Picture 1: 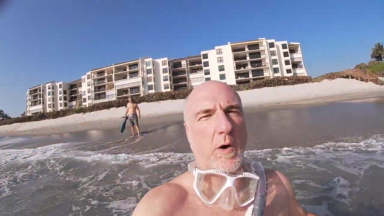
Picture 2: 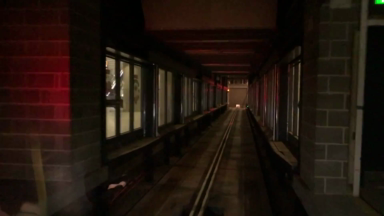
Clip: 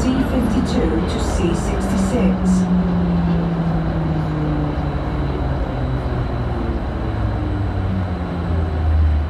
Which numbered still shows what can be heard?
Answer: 2